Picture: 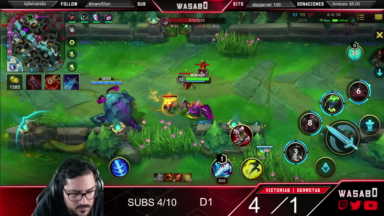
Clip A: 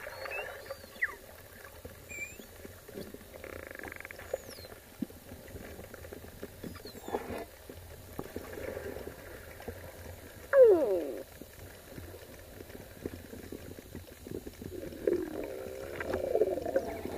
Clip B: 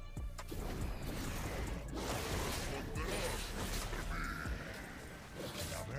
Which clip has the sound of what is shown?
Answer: B